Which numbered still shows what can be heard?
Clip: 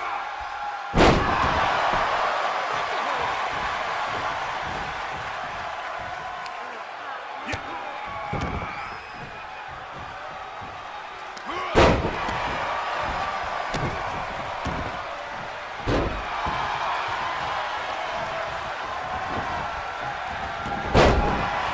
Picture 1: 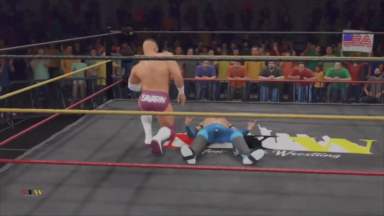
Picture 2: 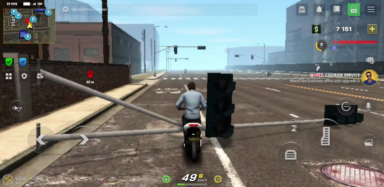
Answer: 1